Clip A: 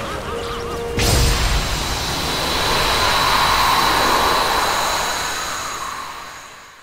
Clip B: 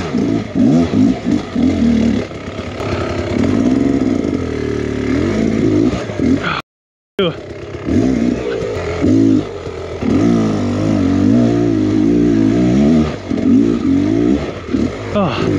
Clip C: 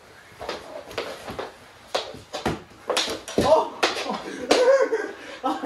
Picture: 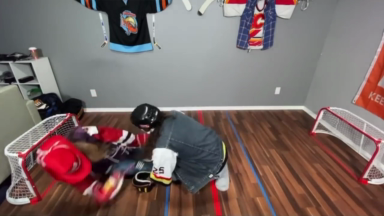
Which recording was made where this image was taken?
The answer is C